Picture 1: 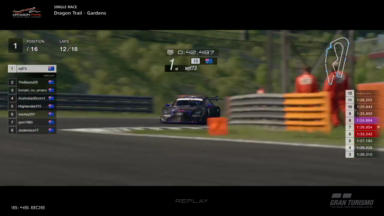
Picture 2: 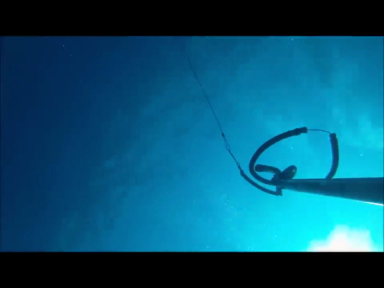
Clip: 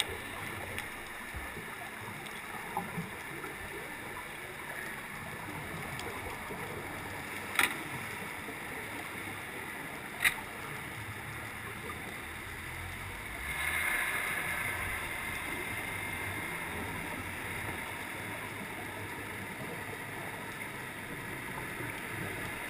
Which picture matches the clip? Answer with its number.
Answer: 2